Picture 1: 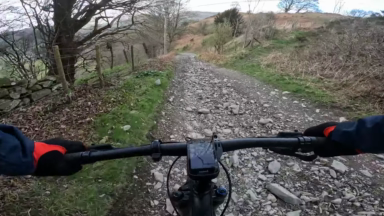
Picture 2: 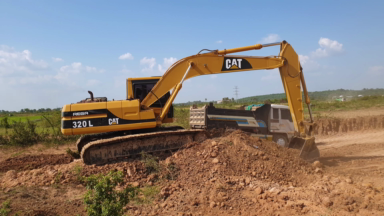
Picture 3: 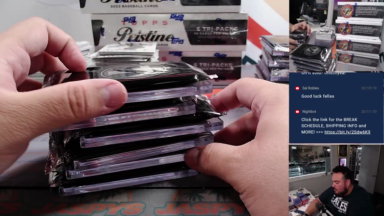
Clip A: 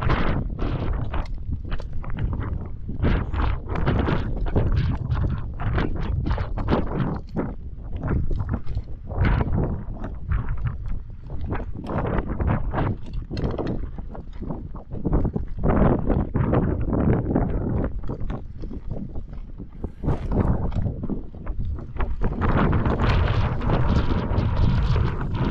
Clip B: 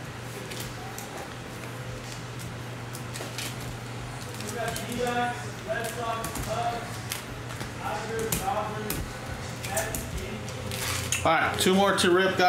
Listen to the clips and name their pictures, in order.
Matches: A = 1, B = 3